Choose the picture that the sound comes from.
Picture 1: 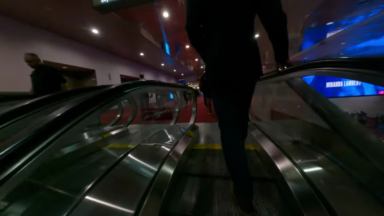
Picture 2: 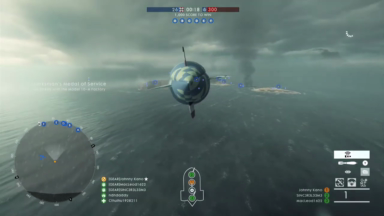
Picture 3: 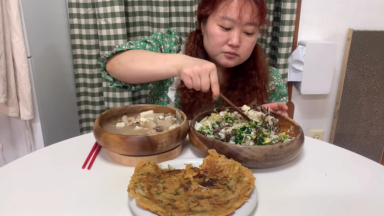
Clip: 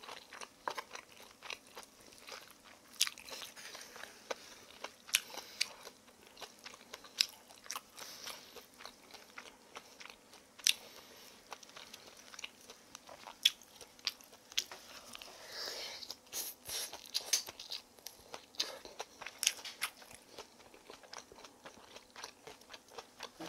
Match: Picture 3